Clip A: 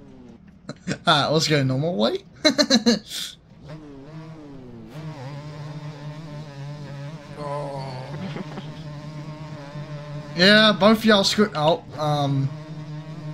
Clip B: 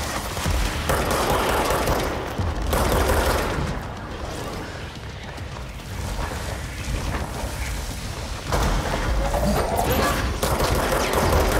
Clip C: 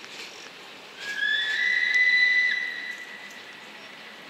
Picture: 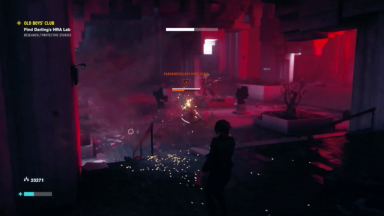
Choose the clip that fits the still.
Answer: B